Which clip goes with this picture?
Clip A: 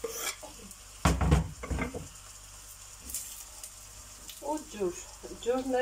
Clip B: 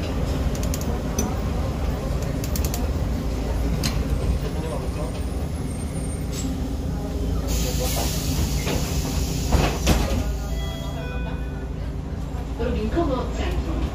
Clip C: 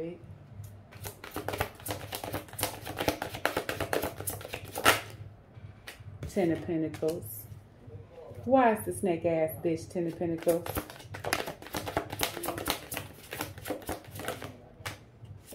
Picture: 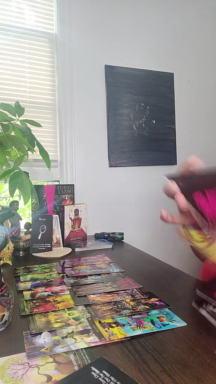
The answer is C